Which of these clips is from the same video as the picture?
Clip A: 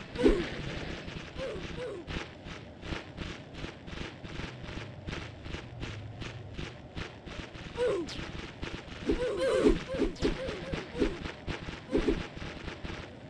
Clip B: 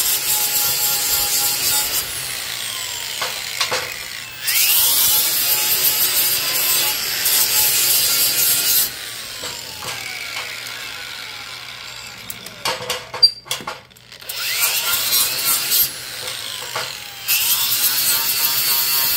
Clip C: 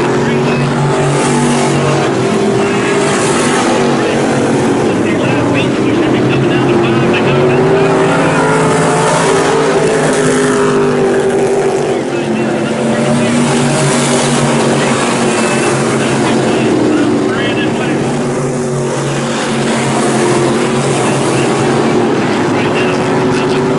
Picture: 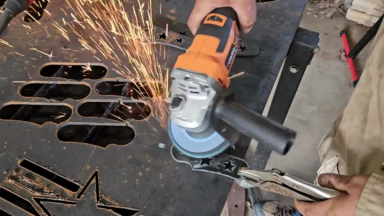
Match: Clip B